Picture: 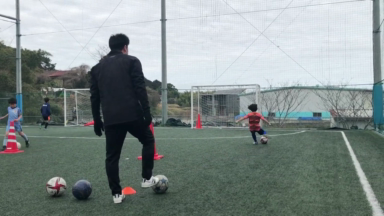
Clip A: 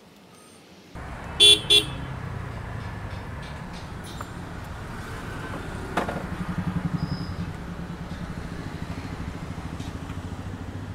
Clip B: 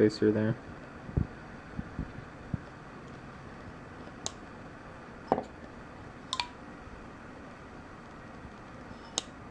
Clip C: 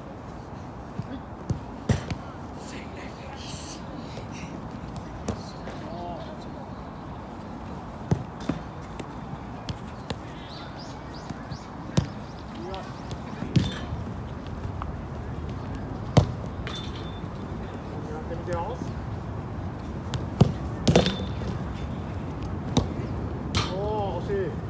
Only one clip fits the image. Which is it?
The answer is C